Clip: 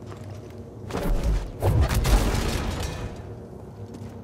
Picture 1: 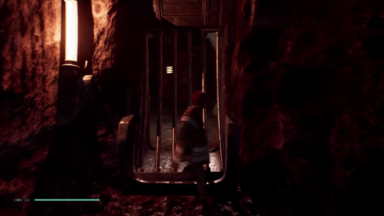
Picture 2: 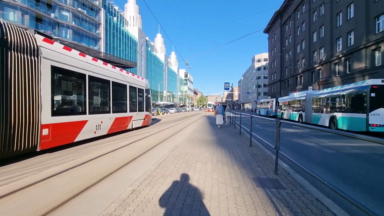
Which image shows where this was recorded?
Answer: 1